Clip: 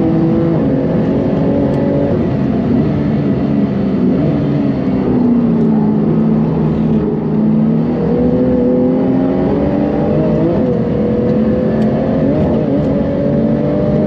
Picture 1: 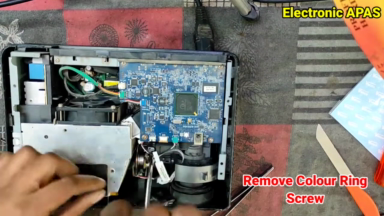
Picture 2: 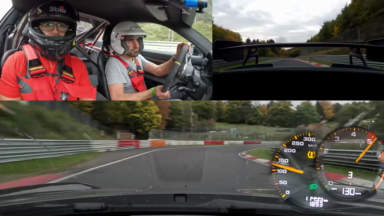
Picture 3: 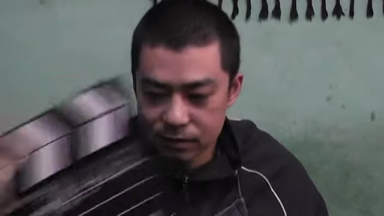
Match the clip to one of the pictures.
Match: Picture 2